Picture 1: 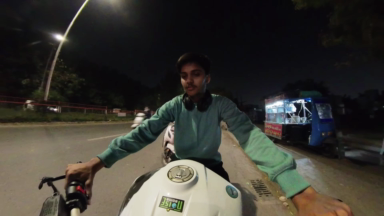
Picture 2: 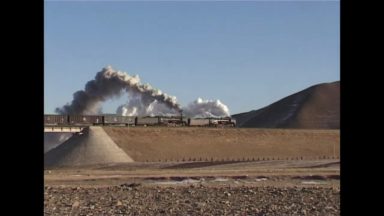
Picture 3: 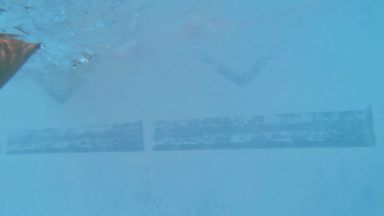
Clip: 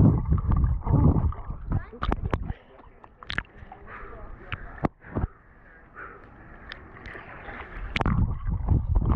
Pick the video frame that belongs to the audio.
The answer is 3